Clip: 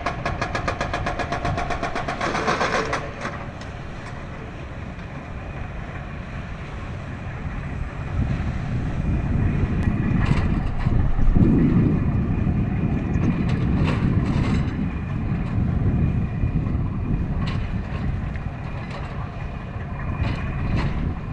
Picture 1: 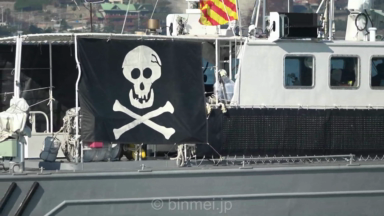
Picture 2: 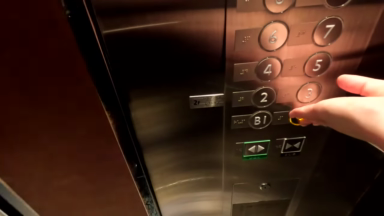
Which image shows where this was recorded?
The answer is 1